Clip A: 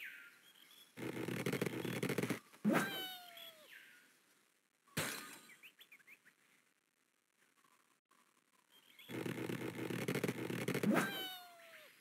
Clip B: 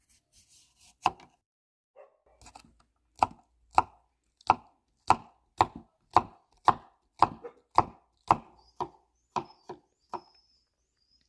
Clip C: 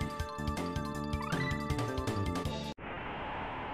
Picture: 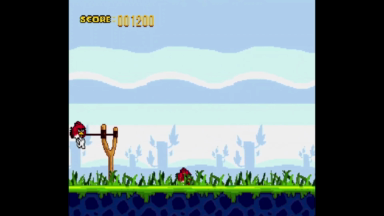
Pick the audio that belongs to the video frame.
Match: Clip A